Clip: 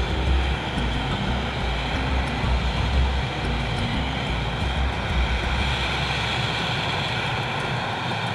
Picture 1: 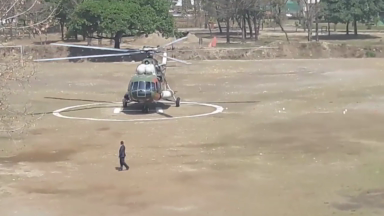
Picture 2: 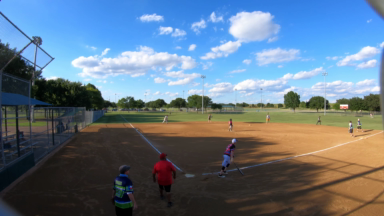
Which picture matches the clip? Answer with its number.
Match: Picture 1